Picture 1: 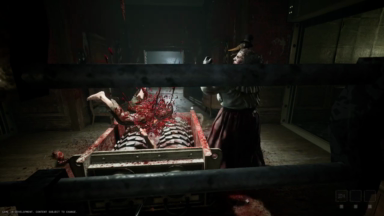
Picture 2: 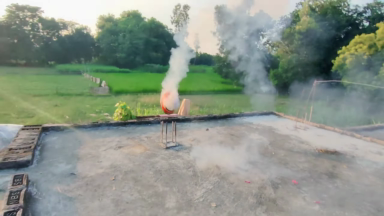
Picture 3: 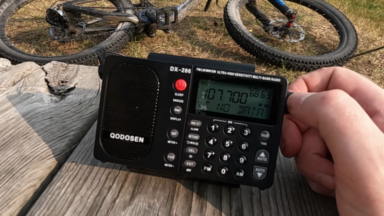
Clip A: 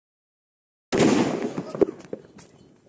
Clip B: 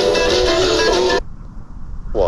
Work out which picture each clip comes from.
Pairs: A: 2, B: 3